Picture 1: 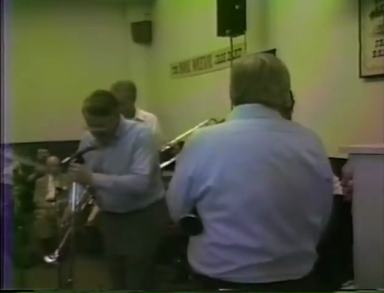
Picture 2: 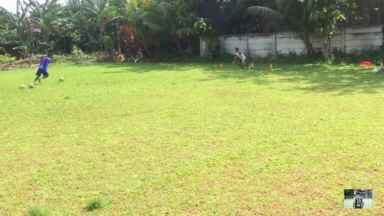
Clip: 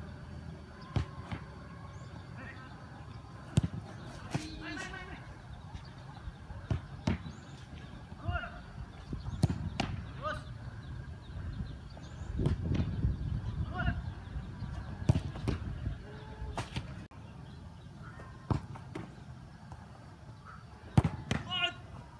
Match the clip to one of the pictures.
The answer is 2